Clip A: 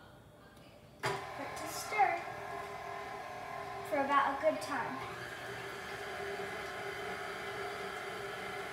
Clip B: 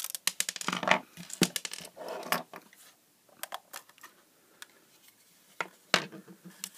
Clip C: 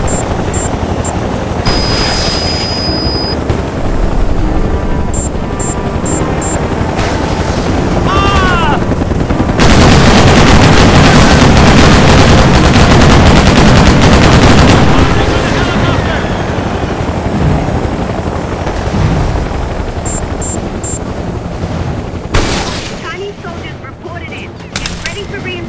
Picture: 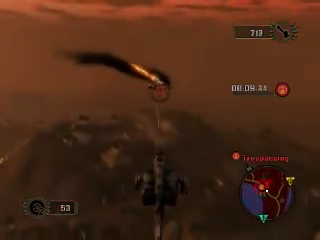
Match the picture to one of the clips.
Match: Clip C